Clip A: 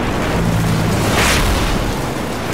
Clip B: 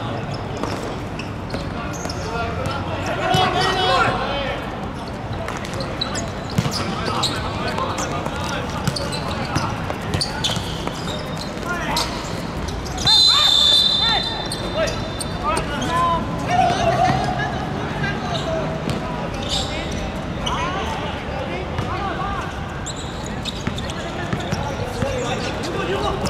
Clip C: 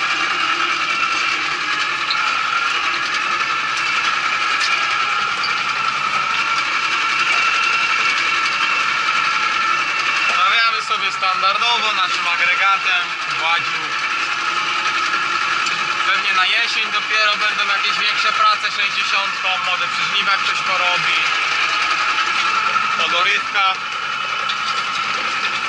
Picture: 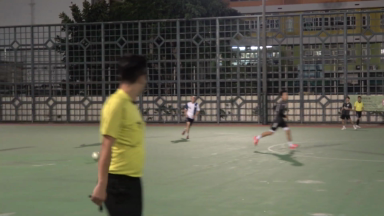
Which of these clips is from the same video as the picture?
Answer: B